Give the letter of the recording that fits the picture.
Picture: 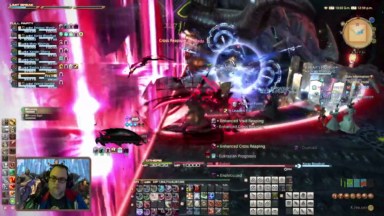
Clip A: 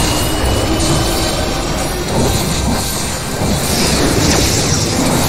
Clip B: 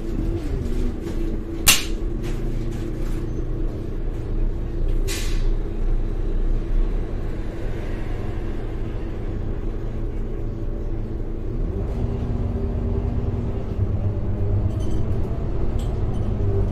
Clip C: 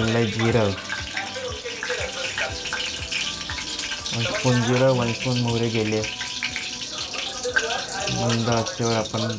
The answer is A